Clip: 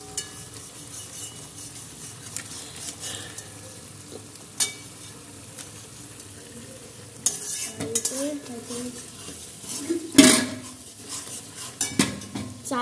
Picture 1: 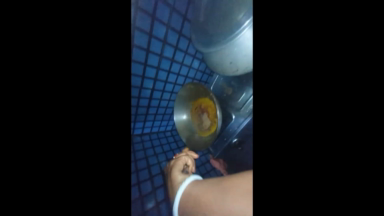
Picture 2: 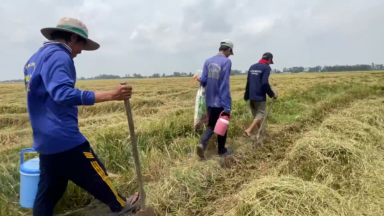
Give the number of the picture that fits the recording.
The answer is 1